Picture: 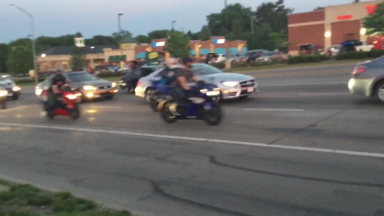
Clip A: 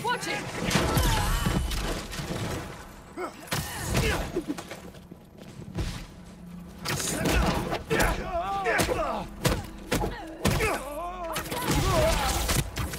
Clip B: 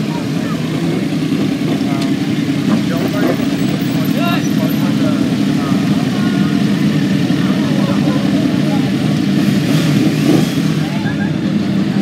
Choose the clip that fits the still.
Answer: B